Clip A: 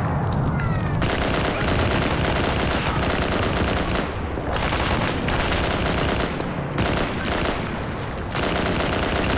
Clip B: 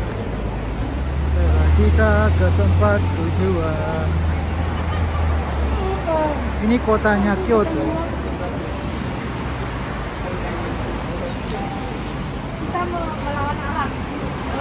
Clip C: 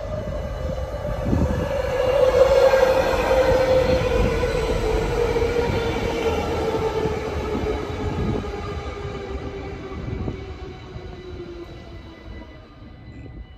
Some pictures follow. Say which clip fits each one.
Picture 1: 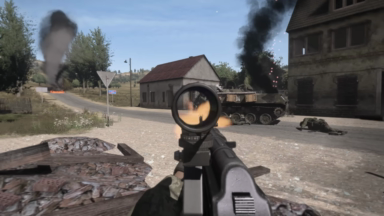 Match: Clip A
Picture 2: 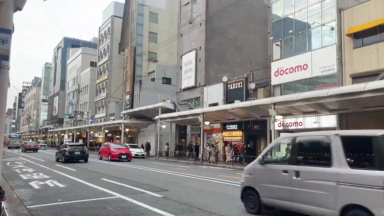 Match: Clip B